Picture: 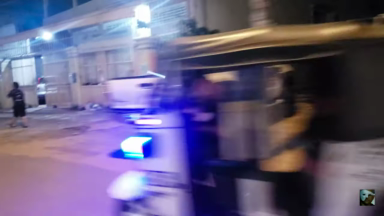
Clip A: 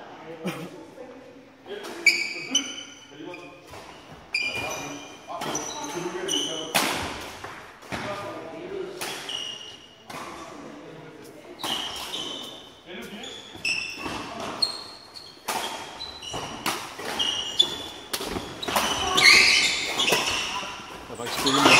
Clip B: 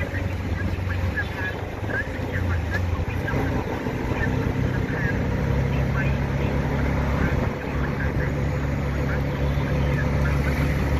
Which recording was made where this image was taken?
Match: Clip B